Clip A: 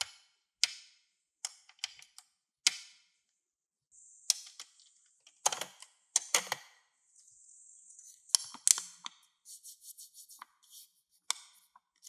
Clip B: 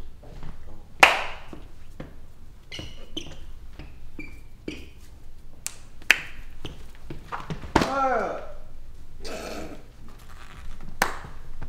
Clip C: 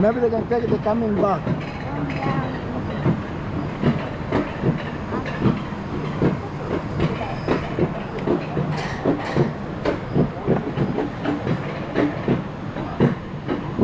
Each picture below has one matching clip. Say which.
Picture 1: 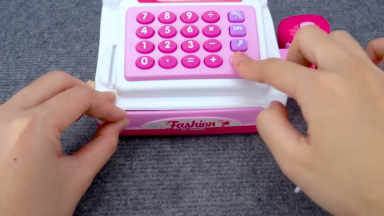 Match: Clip A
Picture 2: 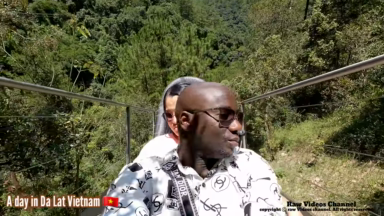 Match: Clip C